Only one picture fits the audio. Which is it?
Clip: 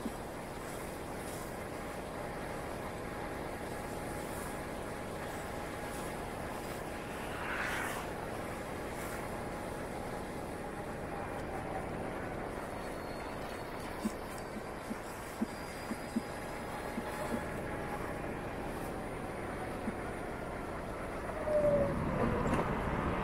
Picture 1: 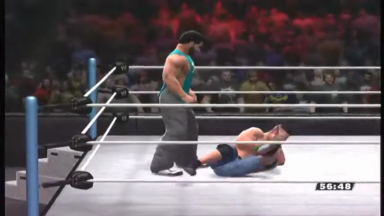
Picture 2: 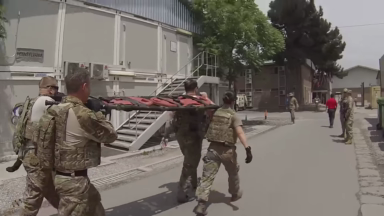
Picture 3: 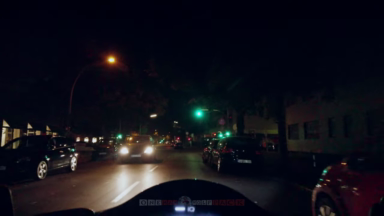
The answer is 3